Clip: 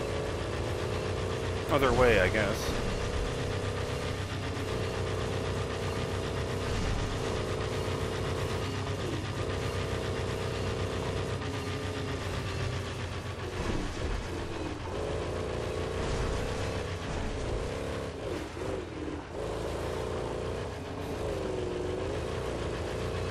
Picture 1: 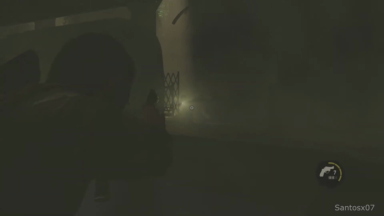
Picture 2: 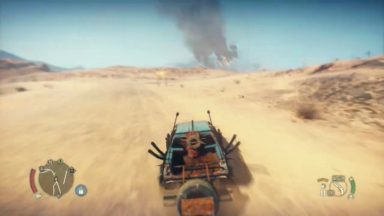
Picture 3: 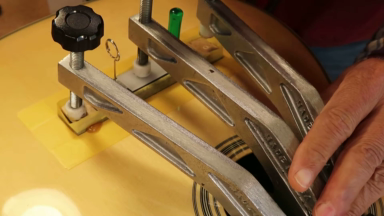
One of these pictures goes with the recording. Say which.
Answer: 2